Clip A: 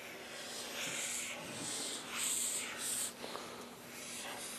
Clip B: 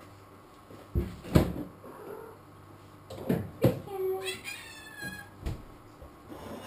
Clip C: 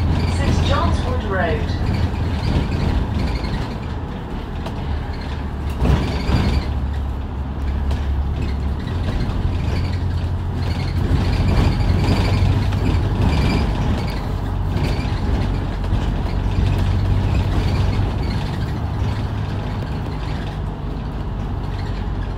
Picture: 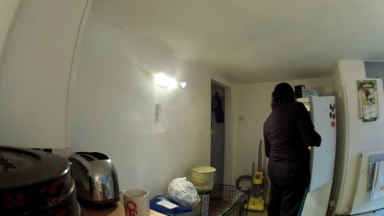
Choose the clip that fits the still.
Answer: B